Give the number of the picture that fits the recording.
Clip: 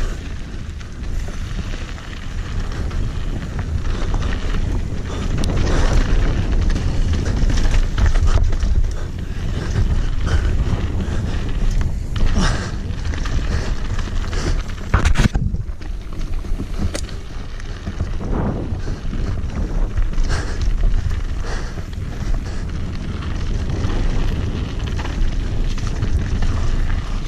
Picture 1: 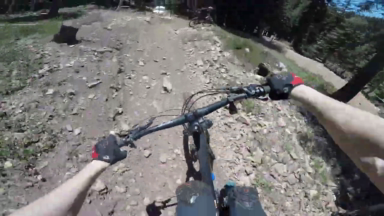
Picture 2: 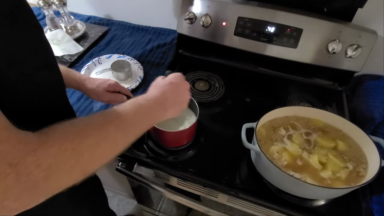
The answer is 1